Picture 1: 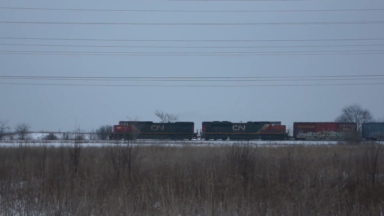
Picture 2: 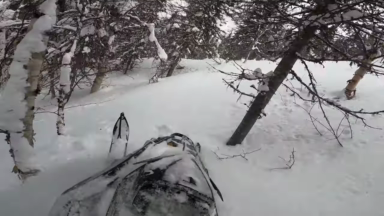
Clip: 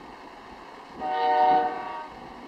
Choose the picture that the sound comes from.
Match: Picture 1